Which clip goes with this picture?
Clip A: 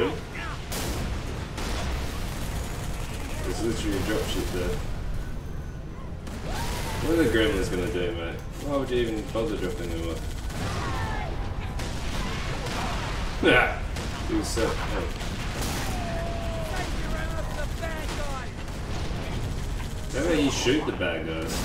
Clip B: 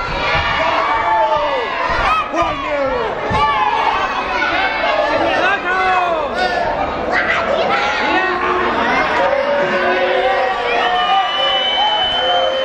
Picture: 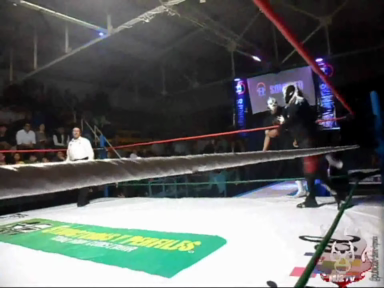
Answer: B